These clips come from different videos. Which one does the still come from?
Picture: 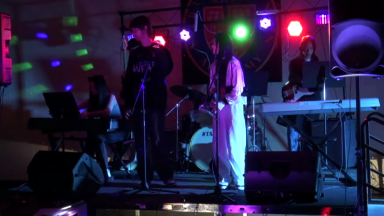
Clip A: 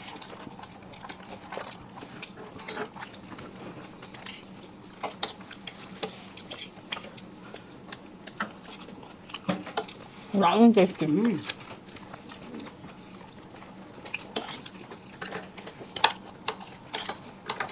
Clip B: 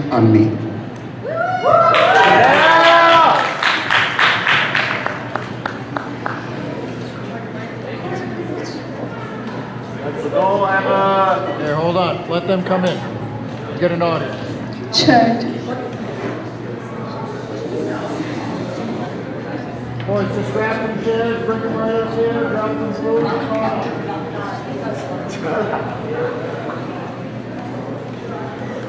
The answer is B